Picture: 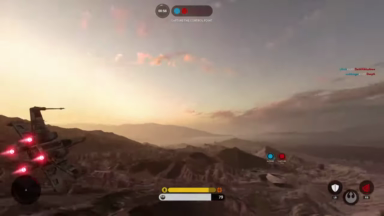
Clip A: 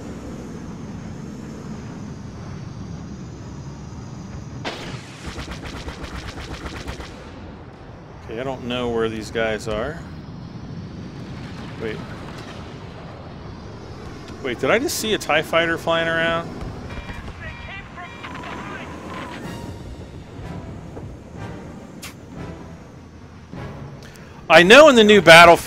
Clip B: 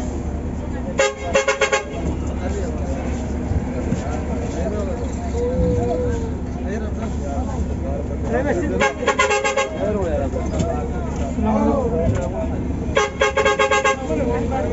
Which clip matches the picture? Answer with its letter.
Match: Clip A